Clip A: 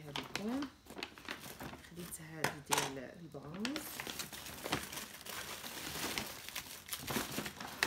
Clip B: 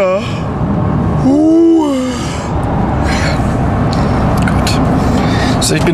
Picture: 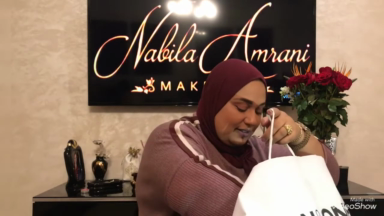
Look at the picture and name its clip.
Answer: A